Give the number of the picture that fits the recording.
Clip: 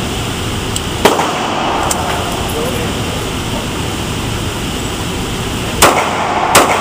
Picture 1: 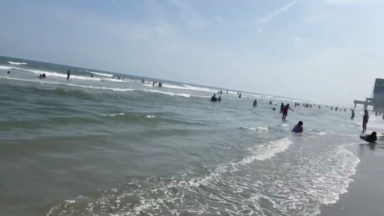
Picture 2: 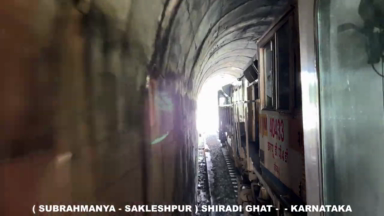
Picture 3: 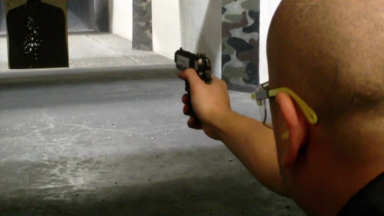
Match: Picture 3